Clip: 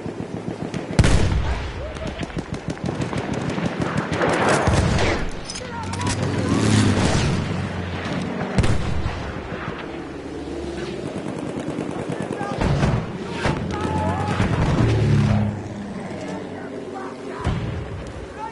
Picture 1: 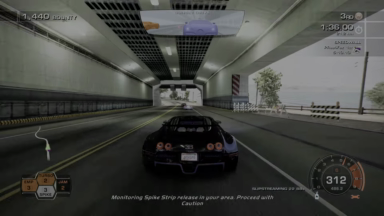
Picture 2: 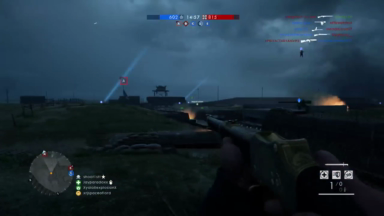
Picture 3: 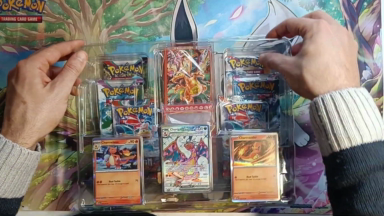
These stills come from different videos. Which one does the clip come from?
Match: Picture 2